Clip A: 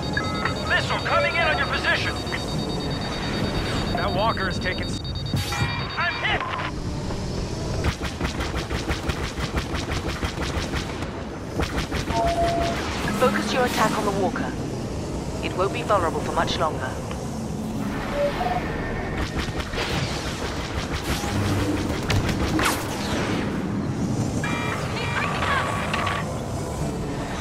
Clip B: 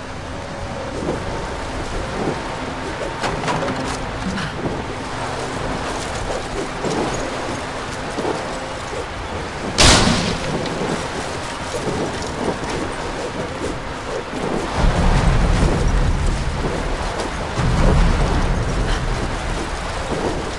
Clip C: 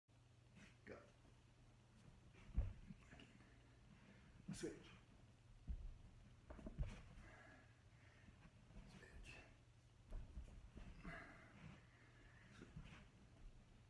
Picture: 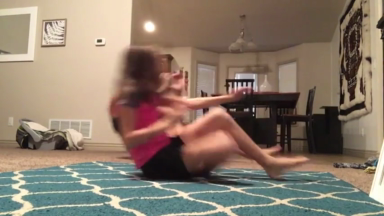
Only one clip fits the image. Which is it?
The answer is C